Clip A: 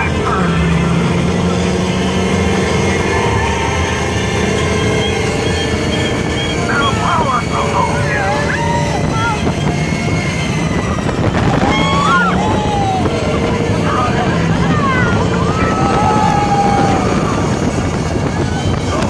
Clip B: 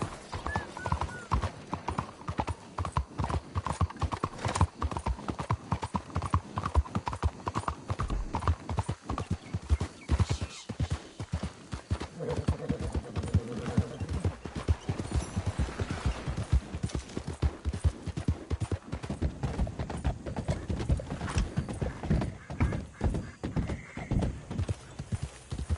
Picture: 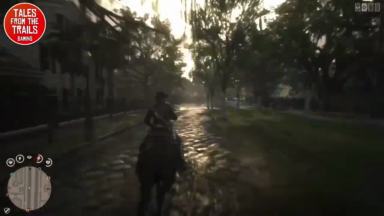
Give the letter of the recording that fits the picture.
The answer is B